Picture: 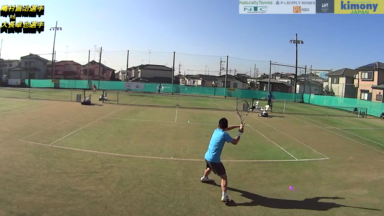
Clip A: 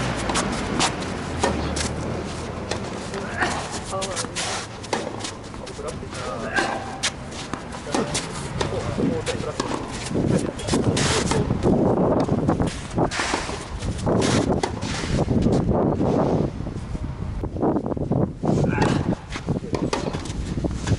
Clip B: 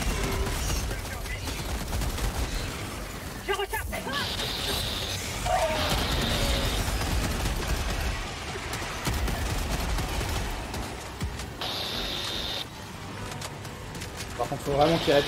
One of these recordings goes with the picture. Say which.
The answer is A